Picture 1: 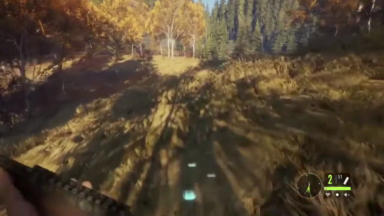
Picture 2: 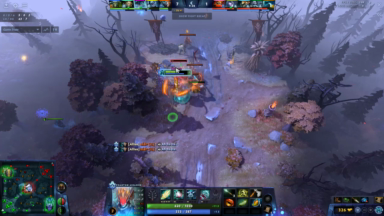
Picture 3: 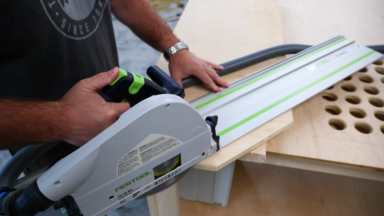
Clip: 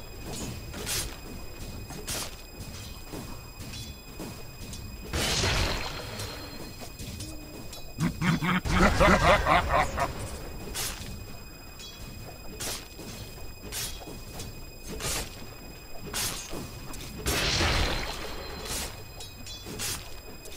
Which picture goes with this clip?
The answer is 2